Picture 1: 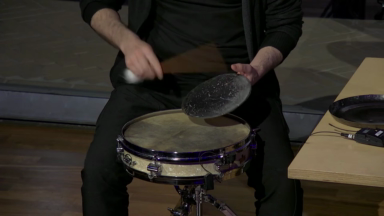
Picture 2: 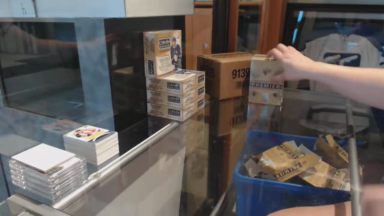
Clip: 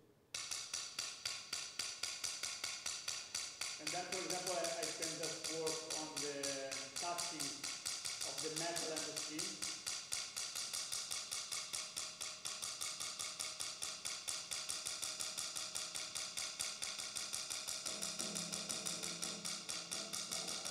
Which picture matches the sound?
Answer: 1